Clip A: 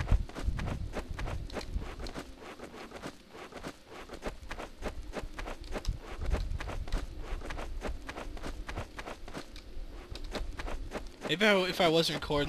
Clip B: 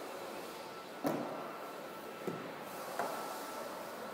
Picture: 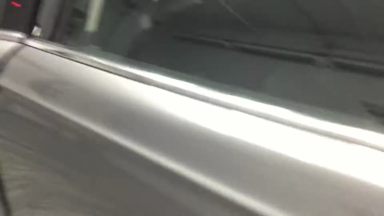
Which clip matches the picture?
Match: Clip B